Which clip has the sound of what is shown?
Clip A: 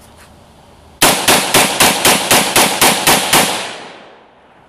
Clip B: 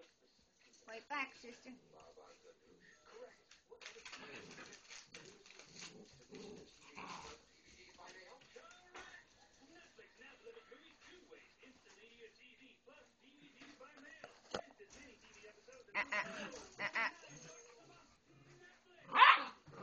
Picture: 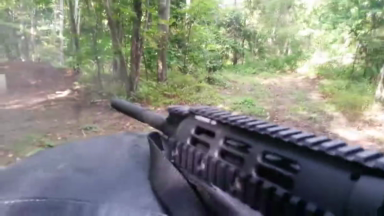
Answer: A